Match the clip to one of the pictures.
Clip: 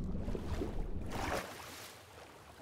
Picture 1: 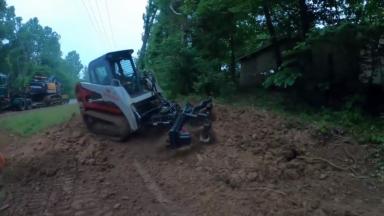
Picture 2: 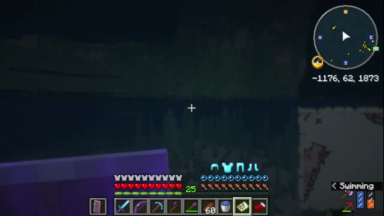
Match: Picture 2